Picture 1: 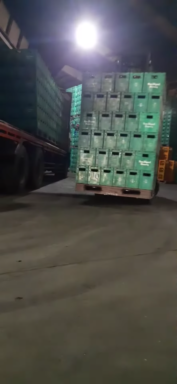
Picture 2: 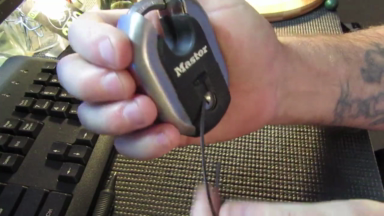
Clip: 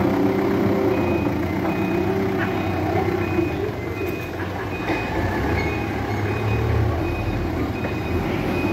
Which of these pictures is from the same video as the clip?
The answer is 1